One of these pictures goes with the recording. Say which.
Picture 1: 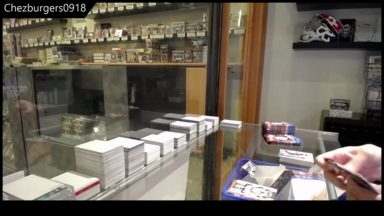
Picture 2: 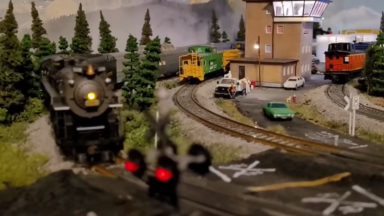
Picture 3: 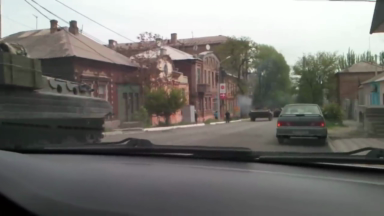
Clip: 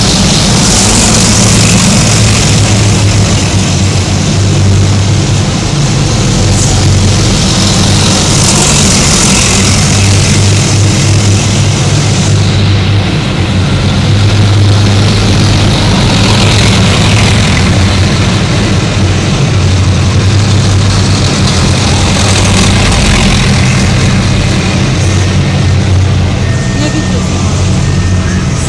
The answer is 3